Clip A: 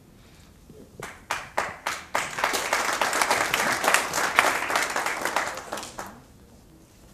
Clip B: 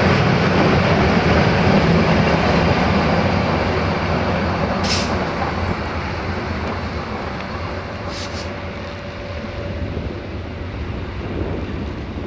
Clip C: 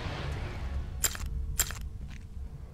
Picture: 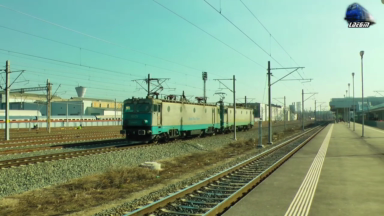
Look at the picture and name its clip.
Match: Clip B